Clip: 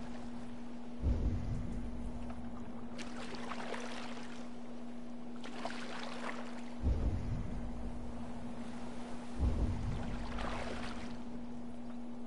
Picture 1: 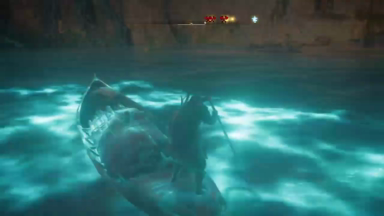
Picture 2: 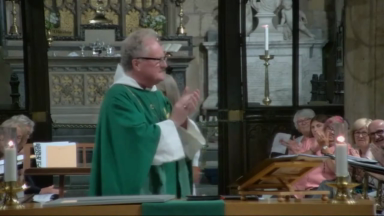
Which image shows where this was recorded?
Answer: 1